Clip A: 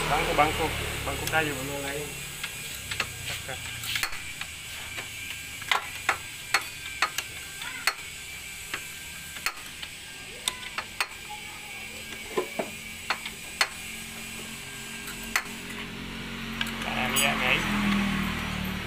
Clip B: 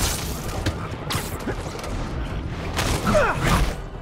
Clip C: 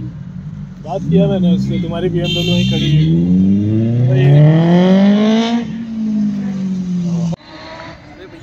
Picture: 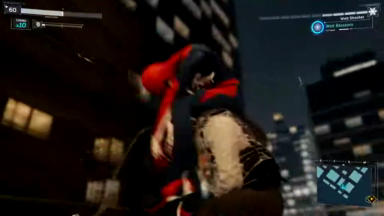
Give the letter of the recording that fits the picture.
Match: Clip B